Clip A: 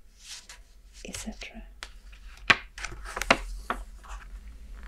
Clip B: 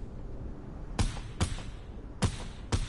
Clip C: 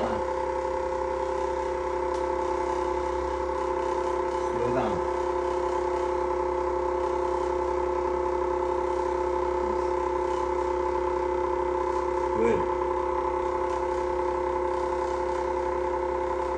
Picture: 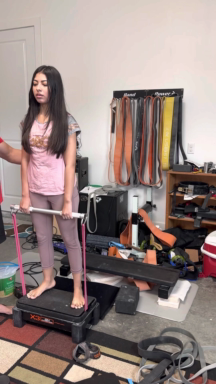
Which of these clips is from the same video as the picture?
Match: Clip C